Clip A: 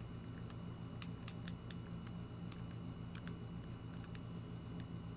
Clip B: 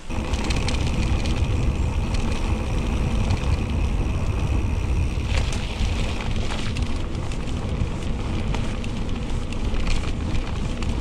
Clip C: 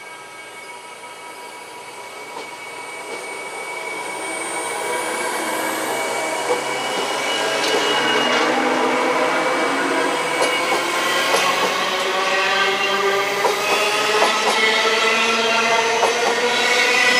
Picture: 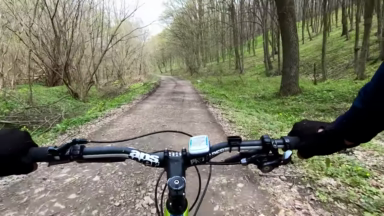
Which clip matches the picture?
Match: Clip B